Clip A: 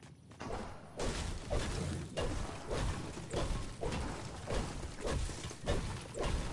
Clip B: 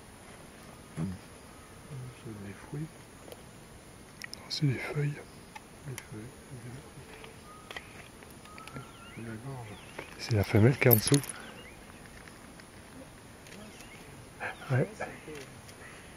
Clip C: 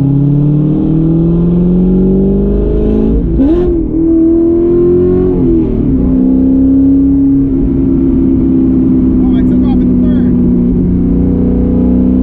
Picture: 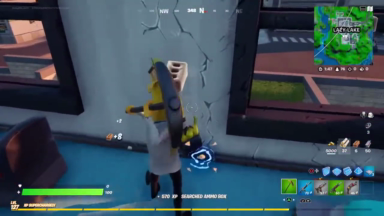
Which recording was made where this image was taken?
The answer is A